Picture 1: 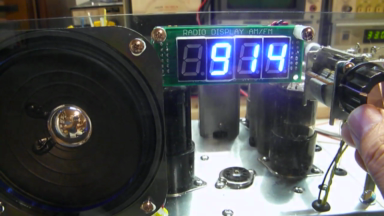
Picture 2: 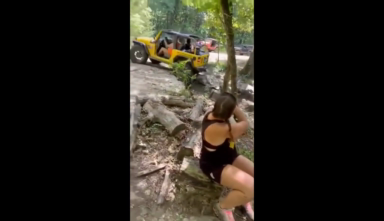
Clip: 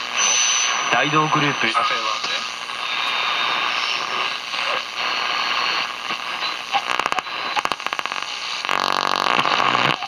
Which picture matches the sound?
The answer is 1